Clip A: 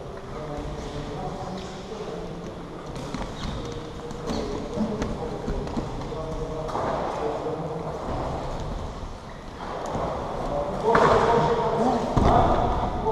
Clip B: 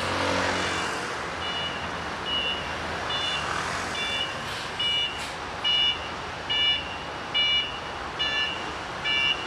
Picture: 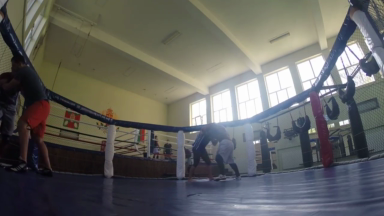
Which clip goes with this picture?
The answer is A